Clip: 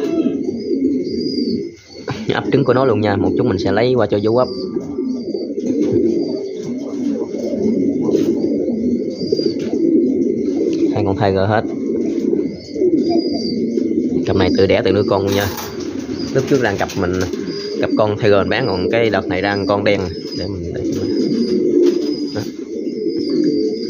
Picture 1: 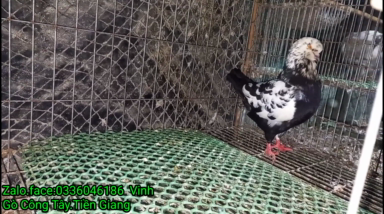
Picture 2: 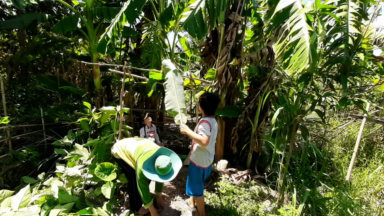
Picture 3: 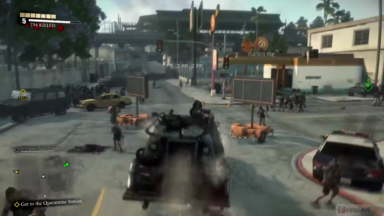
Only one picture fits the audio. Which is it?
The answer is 1